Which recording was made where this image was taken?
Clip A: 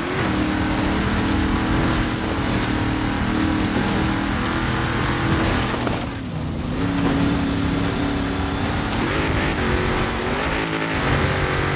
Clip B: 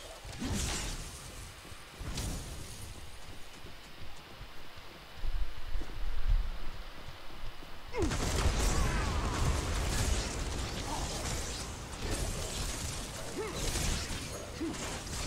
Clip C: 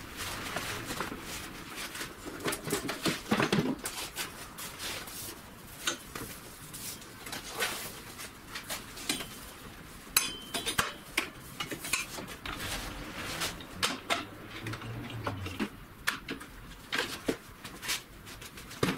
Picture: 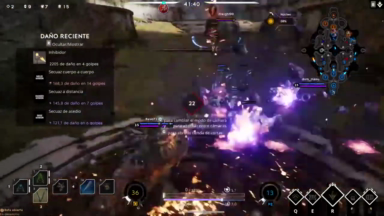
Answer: B